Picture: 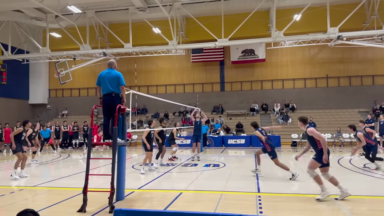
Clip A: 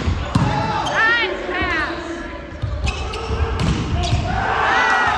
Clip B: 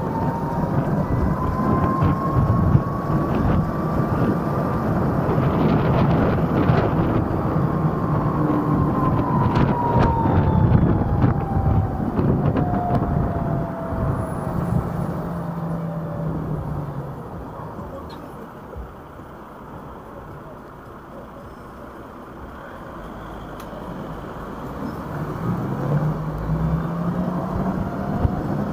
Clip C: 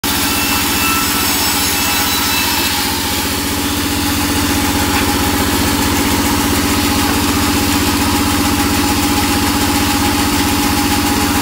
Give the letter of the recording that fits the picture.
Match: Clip A